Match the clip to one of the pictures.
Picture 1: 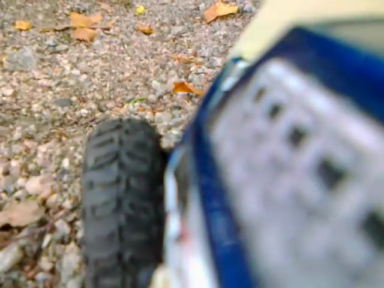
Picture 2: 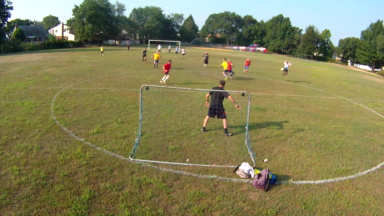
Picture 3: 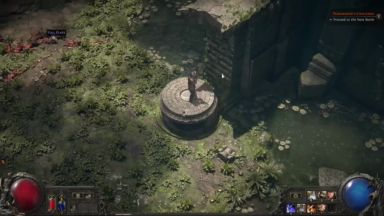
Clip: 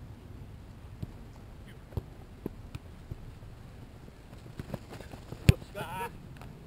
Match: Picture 2